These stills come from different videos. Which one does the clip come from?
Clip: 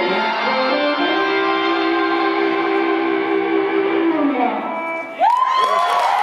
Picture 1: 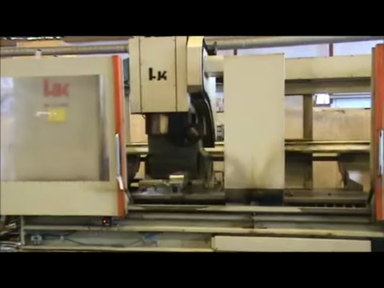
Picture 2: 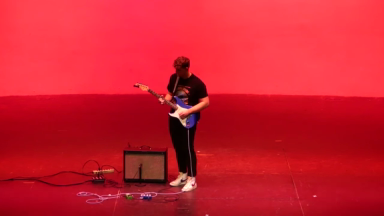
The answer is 2